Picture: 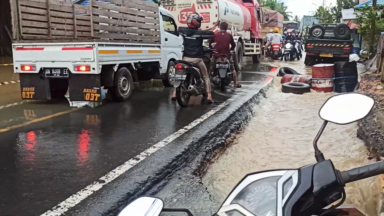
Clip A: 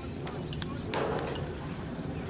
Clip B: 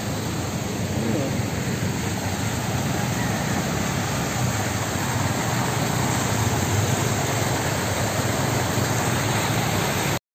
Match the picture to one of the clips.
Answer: B